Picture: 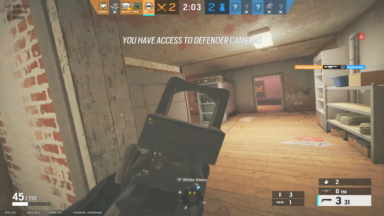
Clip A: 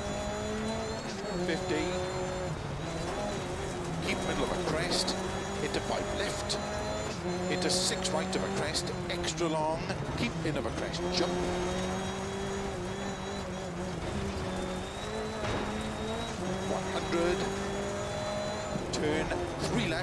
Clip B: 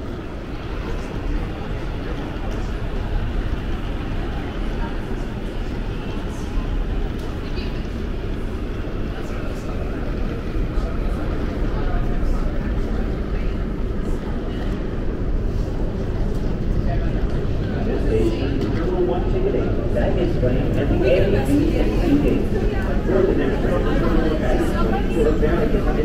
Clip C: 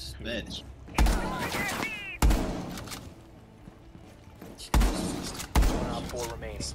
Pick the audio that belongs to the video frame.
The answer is C